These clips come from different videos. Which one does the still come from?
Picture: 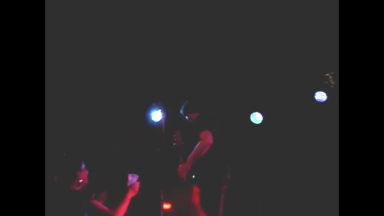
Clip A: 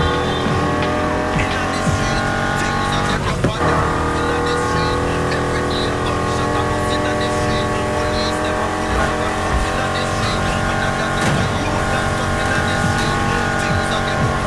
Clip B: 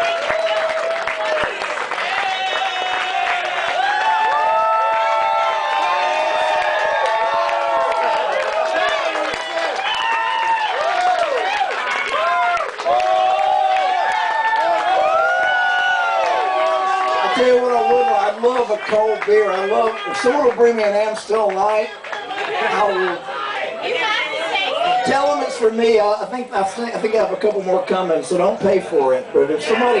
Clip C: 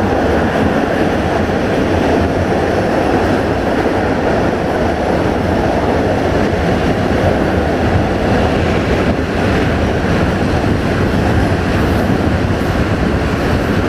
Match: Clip B